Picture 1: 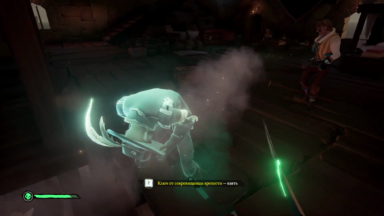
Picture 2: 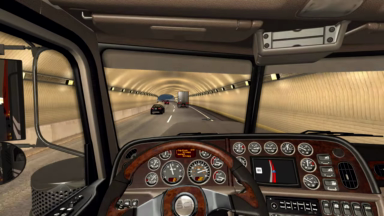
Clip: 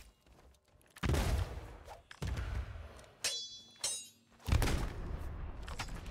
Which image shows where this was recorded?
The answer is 1